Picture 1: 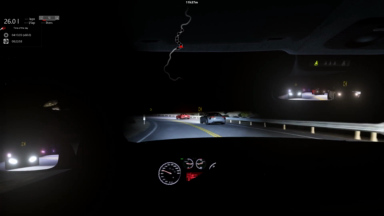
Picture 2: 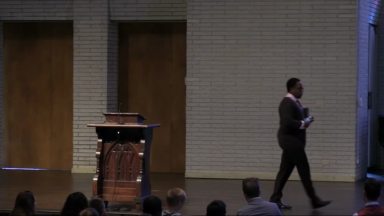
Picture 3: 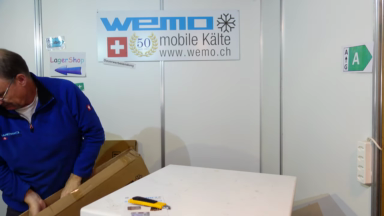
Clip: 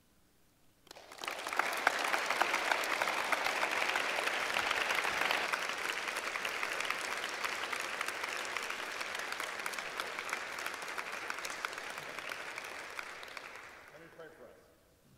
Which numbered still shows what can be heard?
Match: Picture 2